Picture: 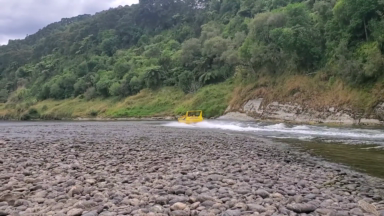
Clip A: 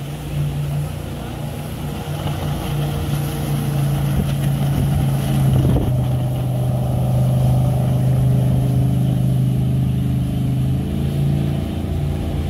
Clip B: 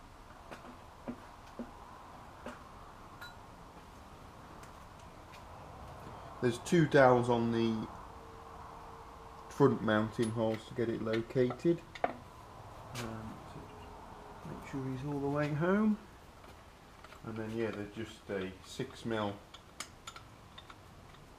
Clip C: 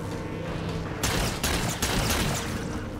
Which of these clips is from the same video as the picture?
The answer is A